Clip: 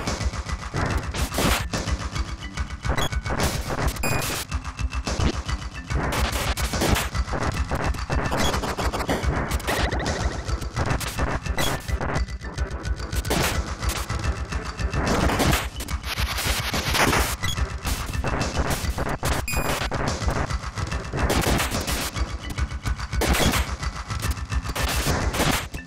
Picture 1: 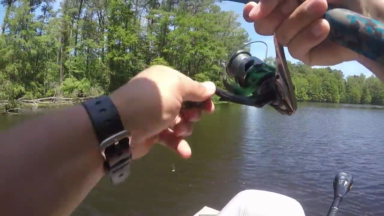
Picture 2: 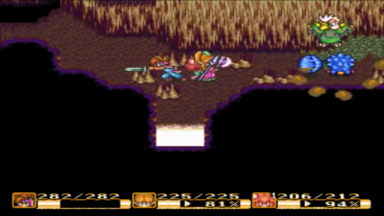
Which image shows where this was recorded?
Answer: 2